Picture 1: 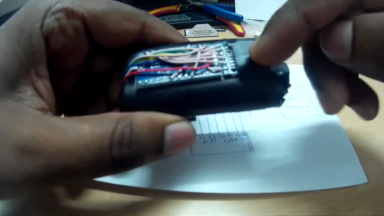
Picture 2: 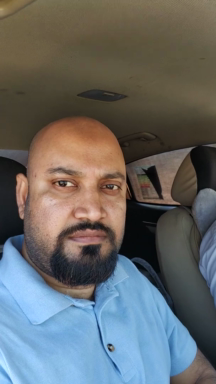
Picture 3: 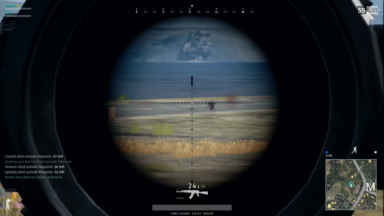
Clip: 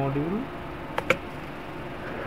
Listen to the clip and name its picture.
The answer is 1